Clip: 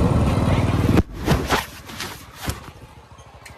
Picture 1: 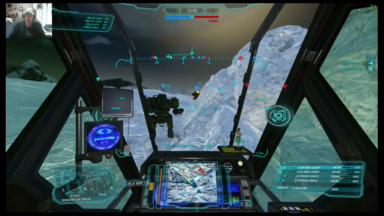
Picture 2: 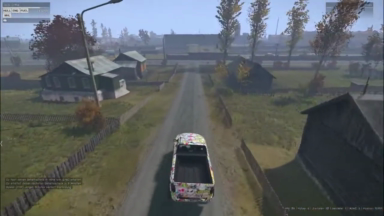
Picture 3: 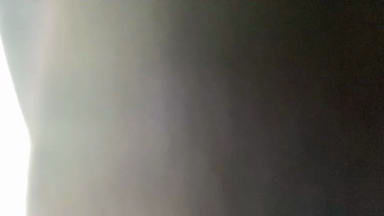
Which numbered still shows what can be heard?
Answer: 3